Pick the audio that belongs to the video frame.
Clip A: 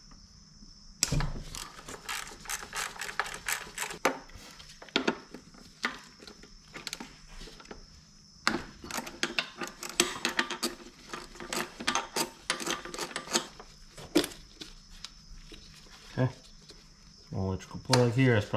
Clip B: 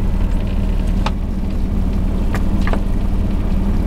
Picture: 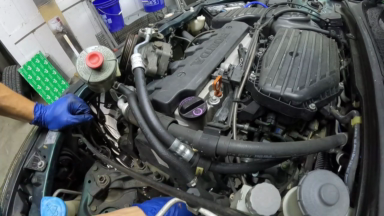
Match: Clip A